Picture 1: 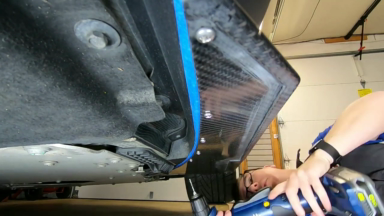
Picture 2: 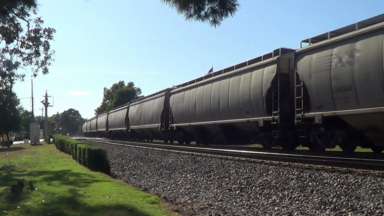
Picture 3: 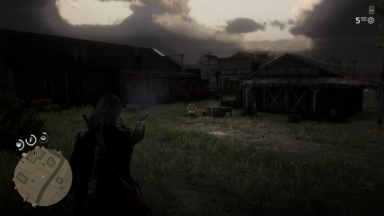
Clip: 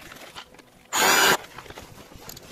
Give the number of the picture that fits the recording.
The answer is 1